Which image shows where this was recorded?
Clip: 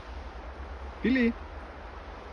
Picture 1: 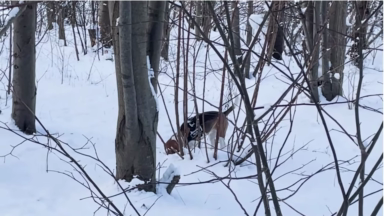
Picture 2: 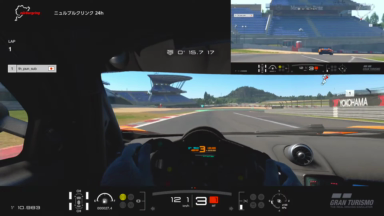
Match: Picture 1